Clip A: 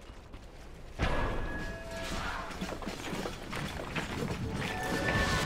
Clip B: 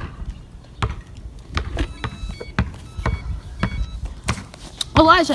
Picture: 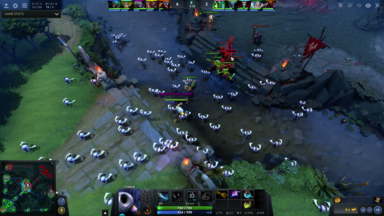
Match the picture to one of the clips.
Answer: A